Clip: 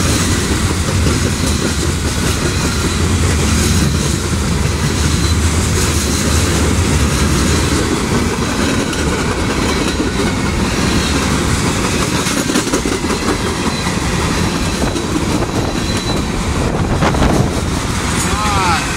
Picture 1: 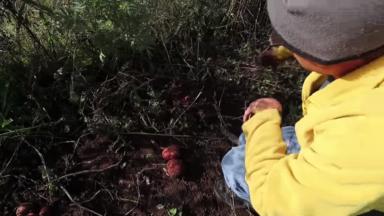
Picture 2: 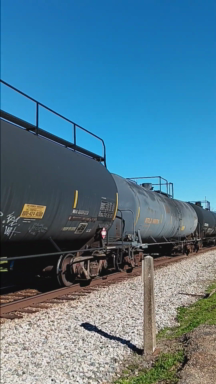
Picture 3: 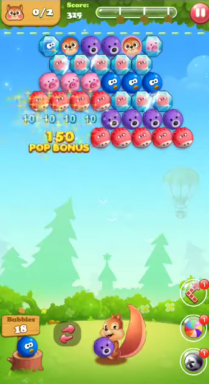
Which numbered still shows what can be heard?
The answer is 2